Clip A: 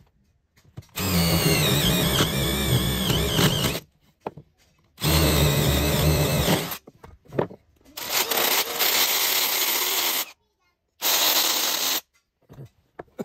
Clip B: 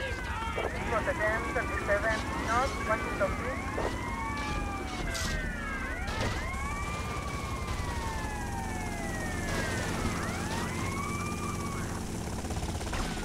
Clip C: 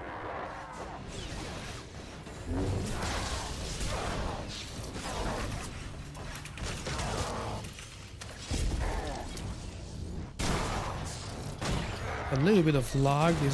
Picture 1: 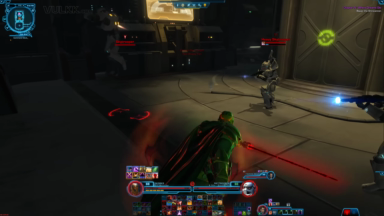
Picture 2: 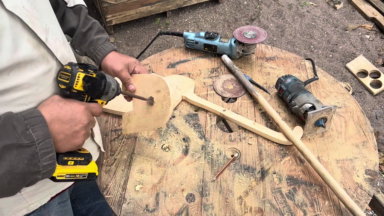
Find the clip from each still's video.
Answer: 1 C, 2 A